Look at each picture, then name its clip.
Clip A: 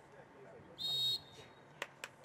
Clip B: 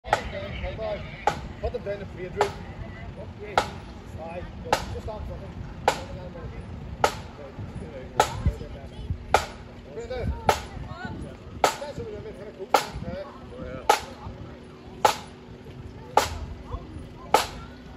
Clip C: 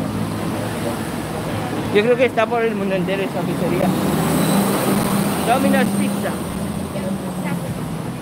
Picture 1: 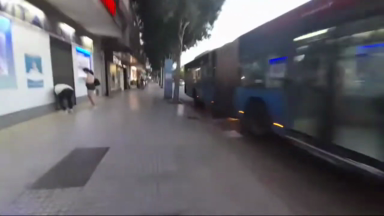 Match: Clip C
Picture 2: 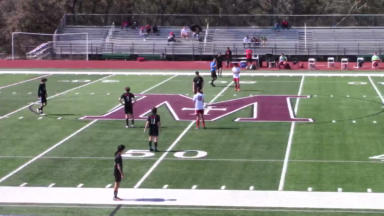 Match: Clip A